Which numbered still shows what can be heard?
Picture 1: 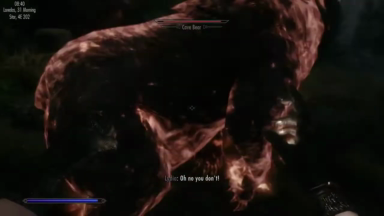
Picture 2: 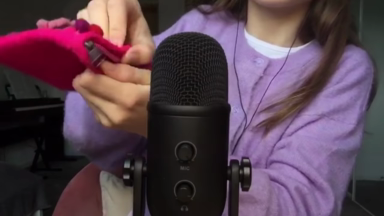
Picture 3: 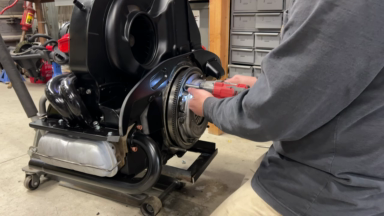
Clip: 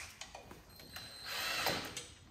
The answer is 3